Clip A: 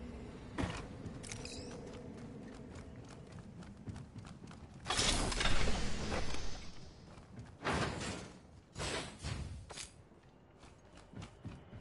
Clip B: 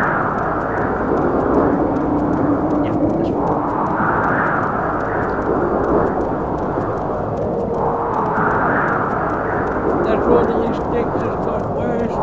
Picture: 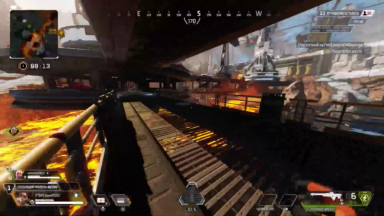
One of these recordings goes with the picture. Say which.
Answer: A